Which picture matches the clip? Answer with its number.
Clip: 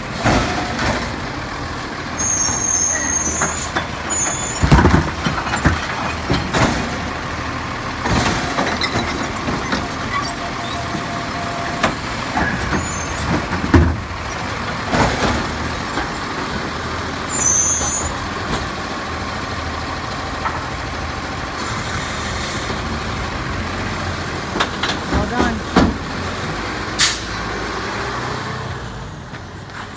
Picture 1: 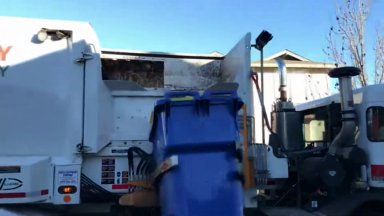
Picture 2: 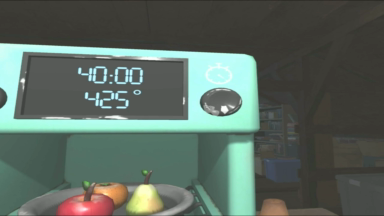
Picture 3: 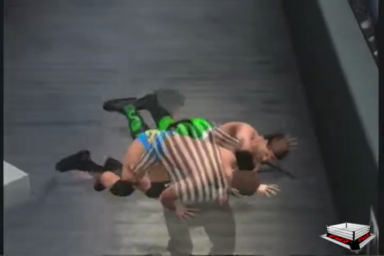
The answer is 1